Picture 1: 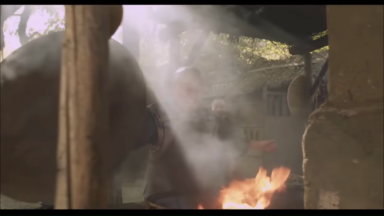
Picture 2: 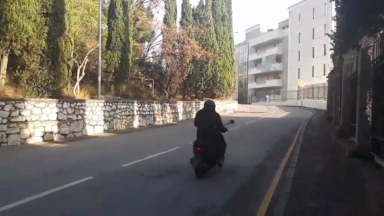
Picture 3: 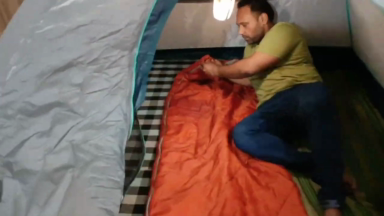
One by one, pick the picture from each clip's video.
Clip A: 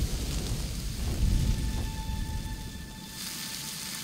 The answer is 1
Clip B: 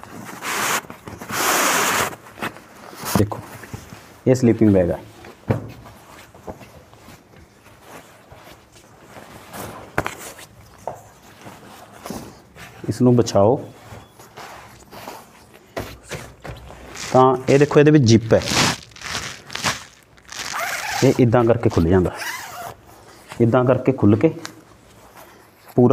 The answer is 3